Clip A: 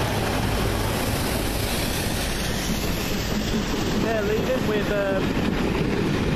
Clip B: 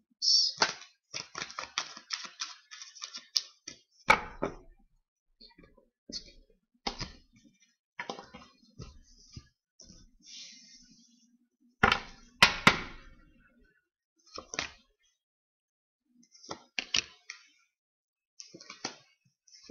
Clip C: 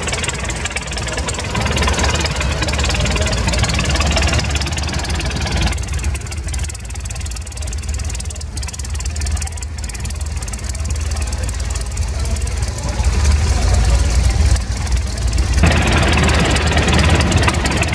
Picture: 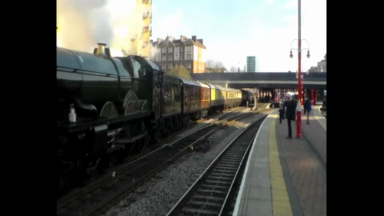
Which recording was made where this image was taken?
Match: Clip A